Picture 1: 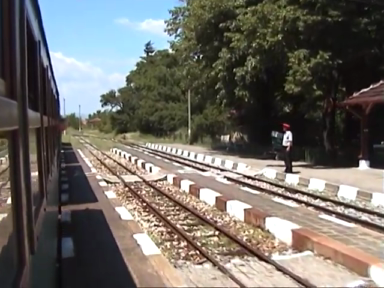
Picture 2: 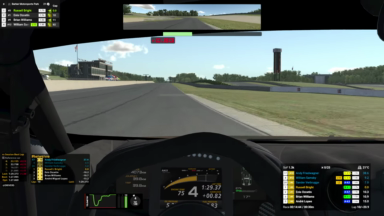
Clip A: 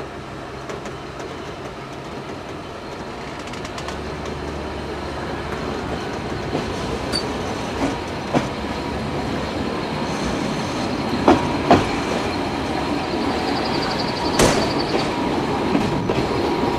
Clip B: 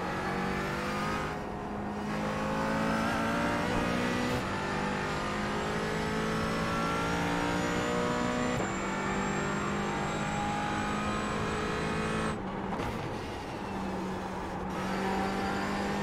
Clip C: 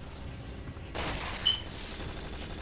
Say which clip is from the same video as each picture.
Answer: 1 A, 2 B